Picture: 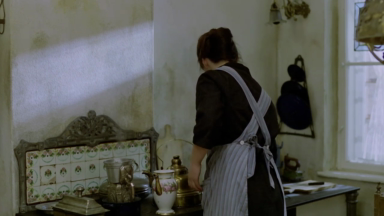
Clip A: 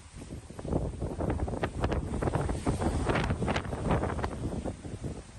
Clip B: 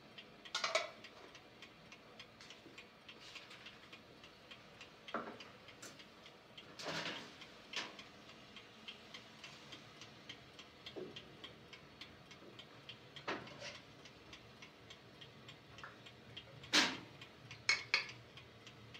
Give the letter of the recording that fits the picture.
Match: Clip B